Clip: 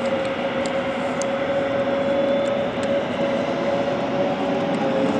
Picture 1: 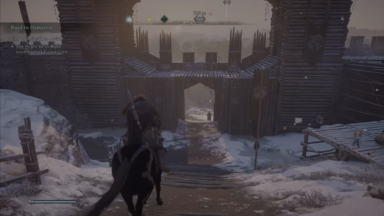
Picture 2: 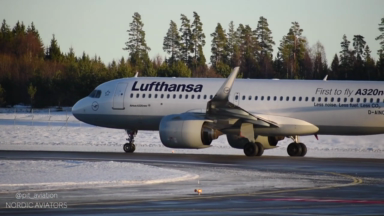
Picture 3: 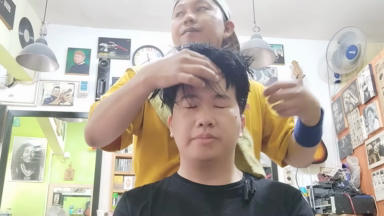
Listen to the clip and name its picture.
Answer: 2